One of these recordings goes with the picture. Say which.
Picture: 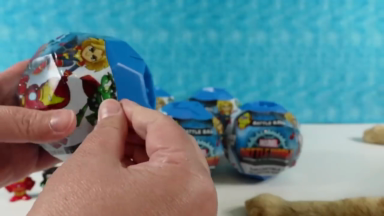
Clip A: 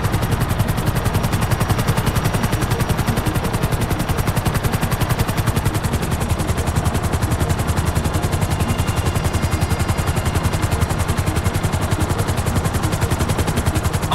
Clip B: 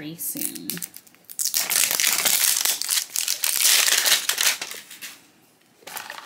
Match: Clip B